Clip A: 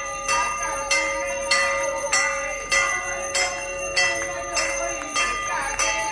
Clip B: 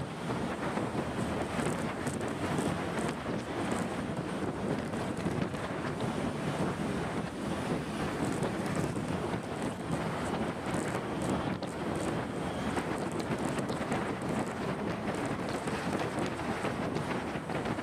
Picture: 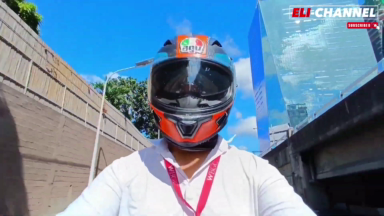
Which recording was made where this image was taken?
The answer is B